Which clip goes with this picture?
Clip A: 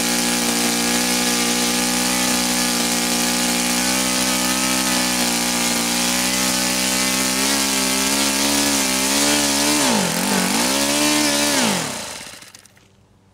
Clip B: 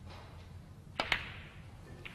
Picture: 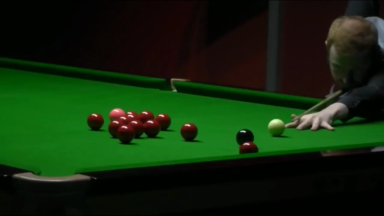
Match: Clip B